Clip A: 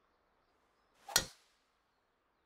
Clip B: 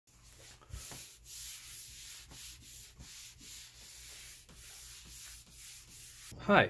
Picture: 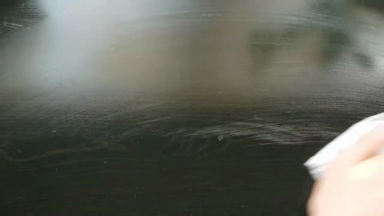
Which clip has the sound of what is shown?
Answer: B